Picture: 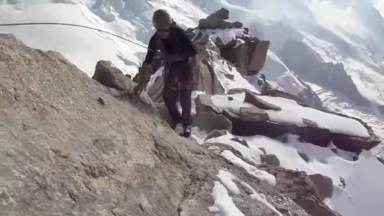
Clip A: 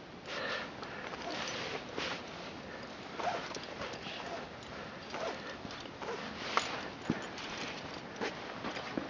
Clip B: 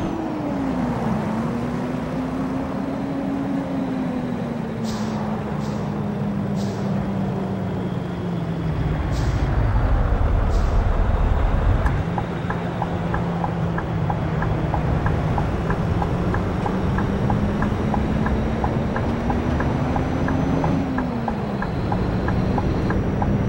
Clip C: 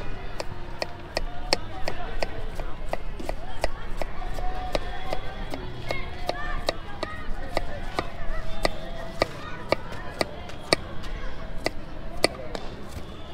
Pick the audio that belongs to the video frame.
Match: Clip A